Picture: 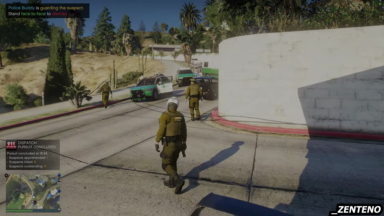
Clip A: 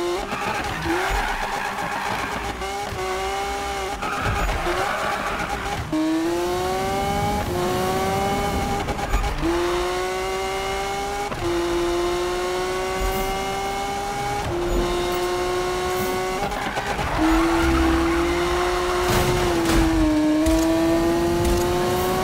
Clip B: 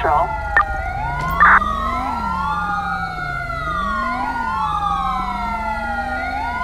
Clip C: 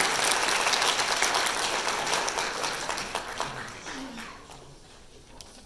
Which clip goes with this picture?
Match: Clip B